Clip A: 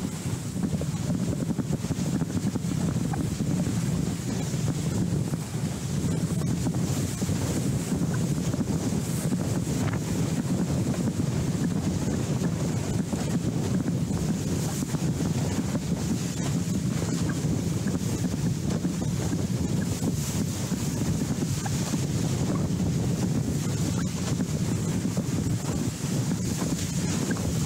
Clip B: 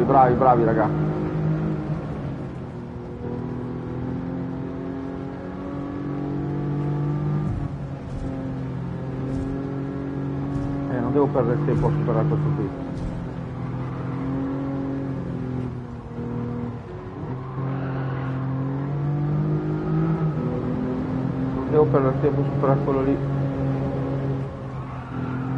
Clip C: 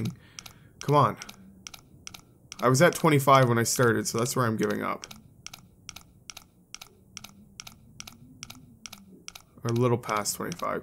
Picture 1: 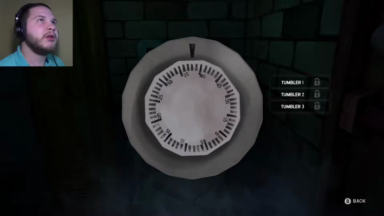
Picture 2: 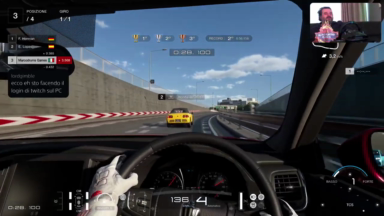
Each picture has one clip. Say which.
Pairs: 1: C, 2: B